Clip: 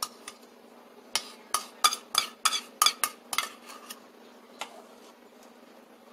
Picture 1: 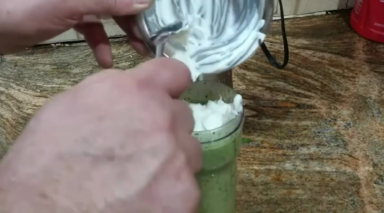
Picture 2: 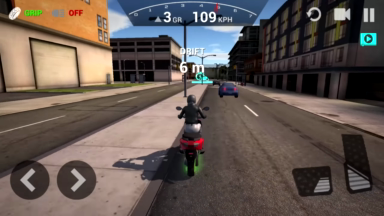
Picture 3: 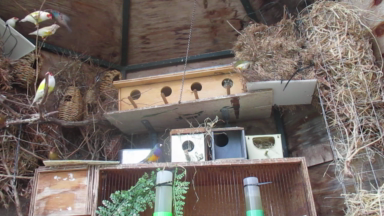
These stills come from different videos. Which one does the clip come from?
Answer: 1